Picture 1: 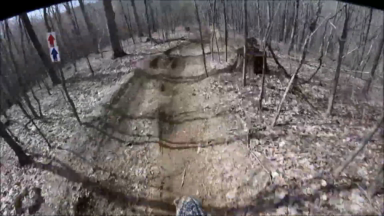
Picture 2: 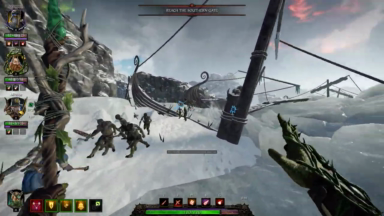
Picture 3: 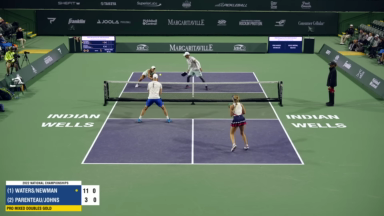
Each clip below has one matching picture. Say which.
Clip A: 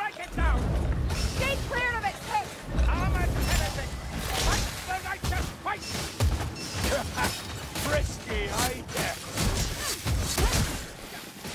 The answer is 2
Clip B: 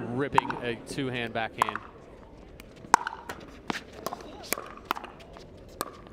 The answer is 3